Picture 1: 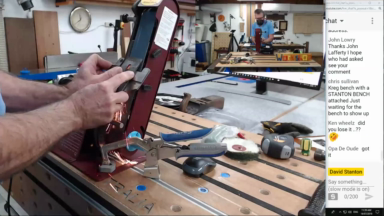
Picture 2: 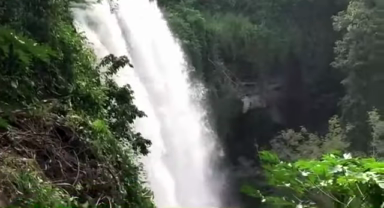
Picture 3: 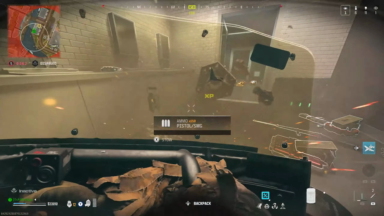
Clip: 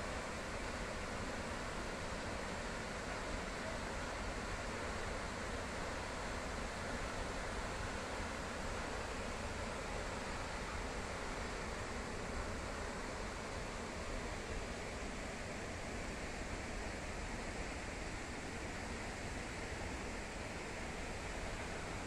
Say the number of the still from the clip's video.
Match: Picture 2